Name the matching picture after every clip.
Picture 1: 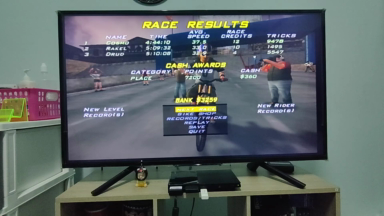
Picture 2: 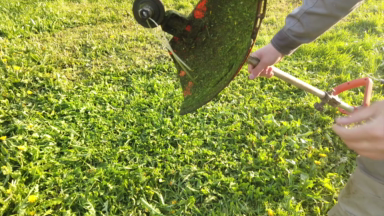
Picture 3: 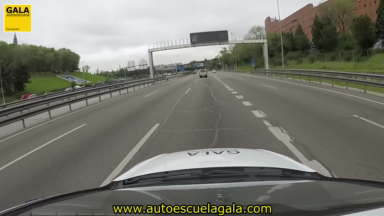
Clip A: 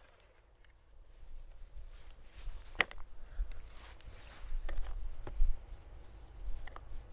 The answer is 2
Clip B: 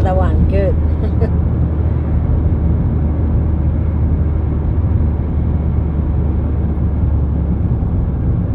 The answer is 3